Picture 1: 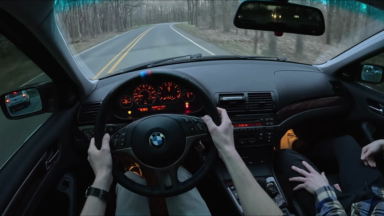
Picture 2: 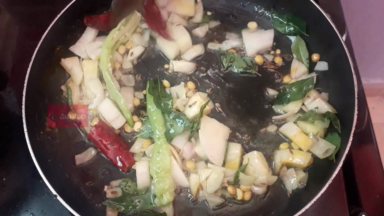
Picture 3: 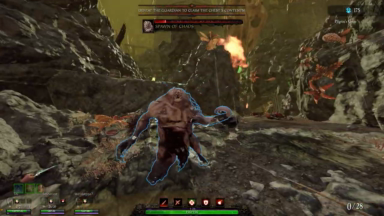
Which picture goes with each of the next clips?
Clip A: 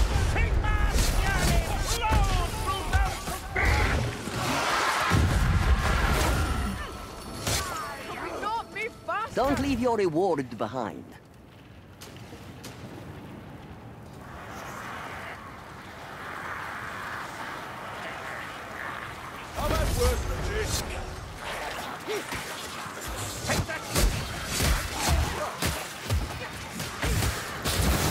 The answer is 3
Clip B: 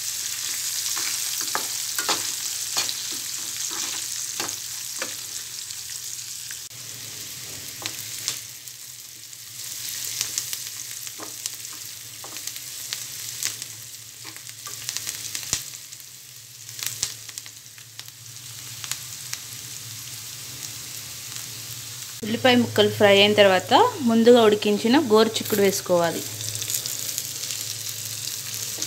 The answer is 2